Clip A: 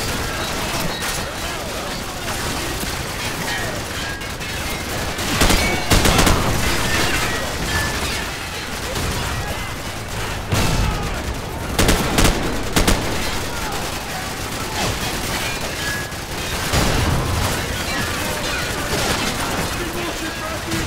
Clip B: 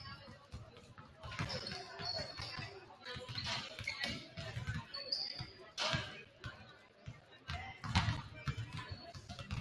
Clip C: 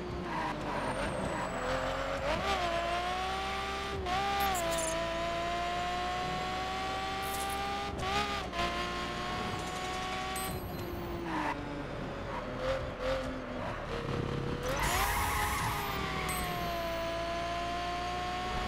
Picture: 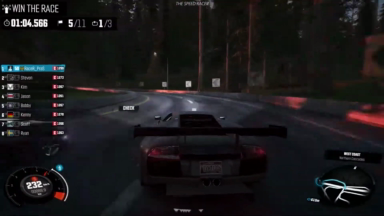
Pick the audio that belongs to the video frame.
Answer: C